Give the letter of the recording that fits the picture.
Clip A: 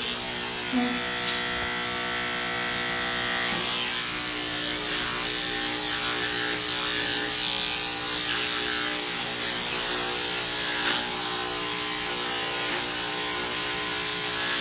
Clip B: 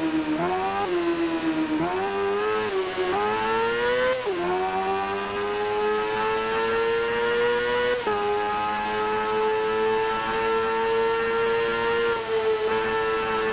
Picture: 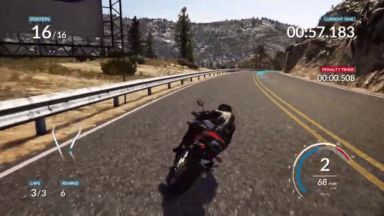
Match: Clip B